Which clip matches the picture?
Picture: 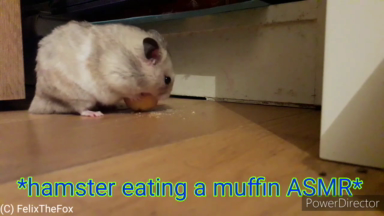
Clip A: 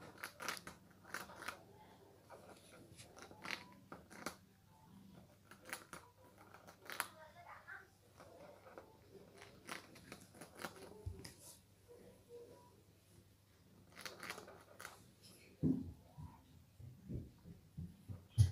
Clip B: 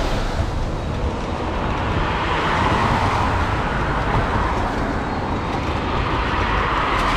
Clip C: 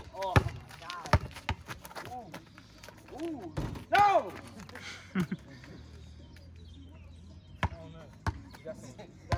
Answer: A